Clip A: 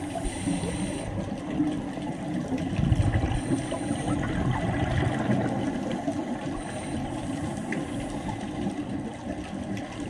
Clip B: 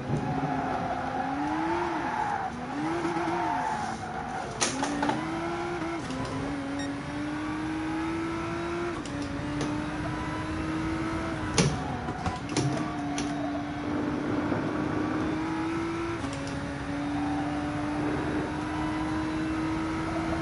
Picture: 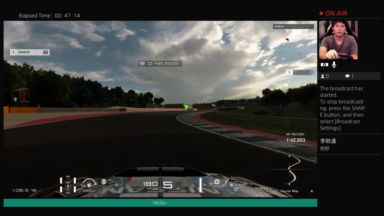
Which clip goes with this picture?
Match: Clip B